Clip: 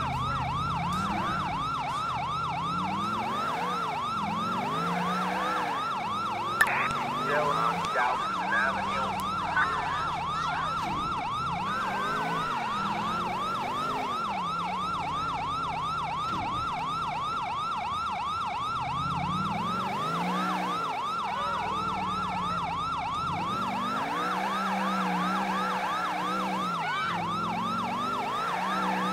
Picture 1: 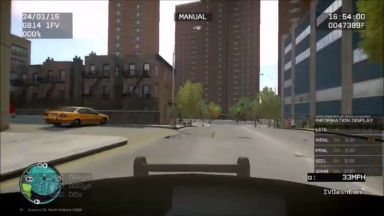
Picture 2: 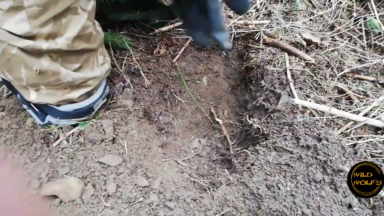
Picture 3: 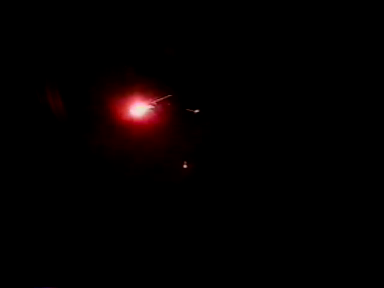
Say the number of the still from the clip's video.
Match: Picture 1